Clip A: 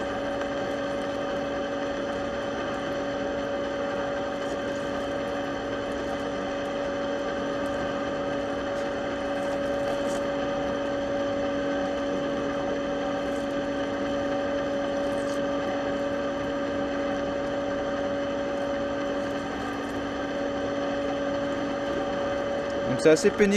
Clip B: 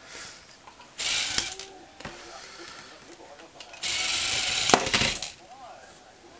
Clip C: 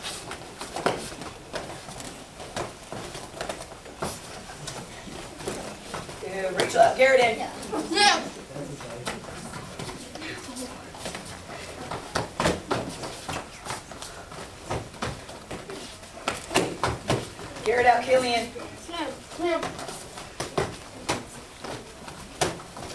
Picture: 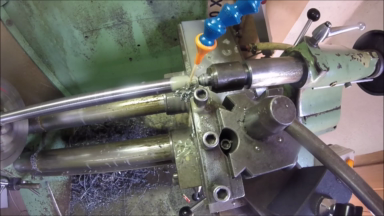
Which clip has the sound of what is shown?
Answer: A